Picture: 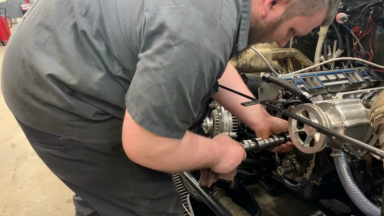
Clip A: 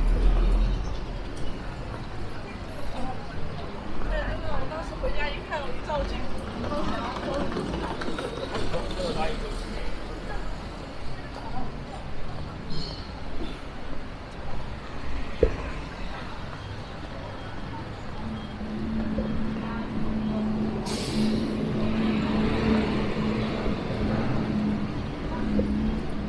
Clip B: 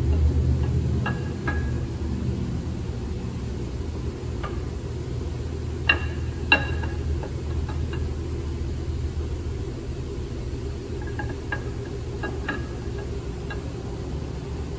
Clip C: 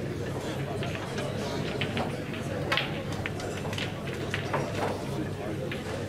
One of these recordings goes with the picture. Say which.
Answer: B